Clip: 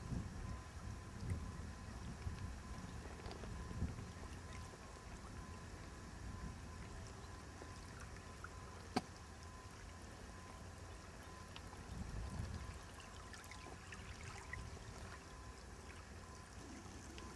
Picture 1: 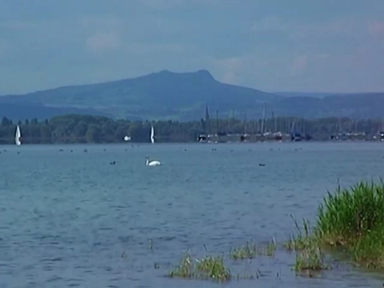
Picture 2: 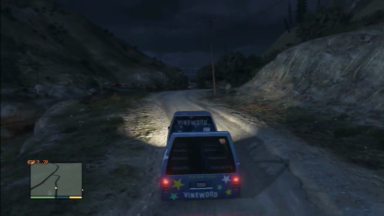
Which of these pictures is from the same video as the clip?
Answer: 1